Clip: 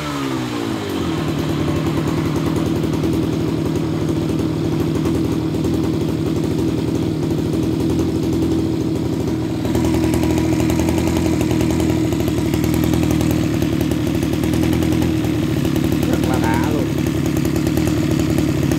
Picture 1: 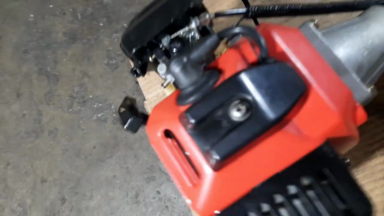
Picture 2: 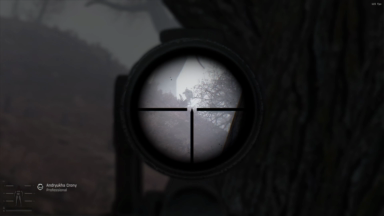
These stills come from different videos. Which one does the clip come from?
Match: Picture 1